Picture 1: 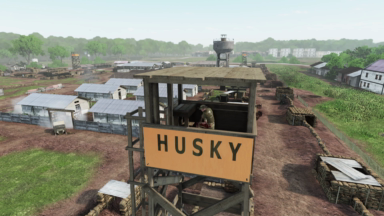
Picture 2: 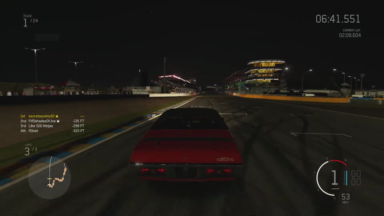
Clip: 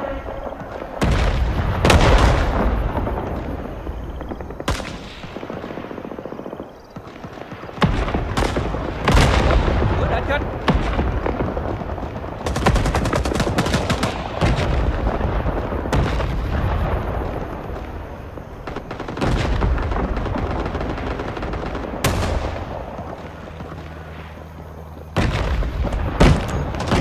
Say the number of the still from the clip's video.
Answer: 1